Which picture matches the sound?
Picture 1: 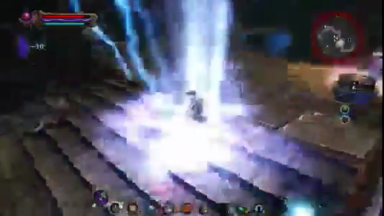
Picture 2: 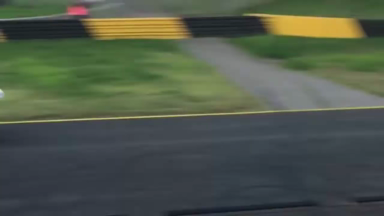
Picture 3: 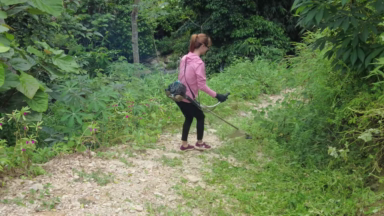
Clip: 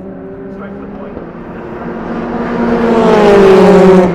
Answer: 2